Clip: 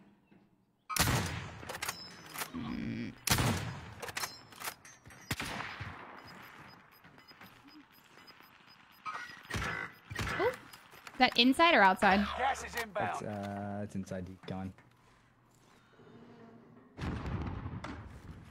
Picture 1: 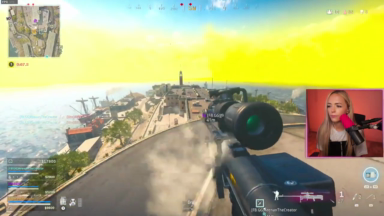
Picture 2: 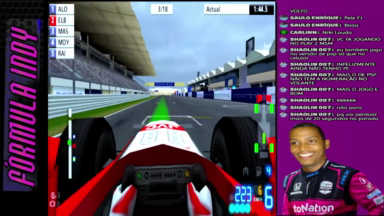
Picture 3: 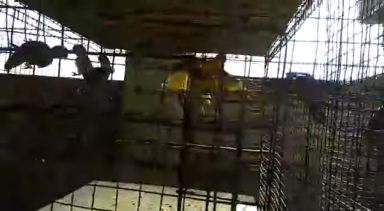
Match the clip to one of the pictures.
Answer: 1